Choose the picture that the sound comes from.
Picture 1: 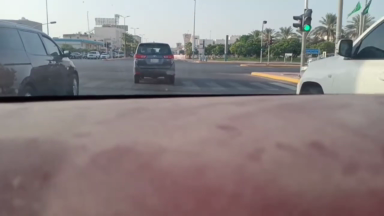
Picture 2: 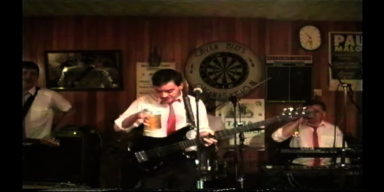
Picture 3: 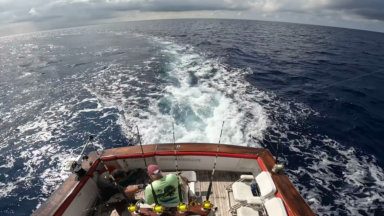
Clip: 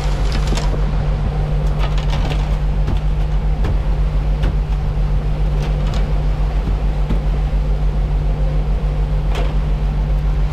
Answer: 3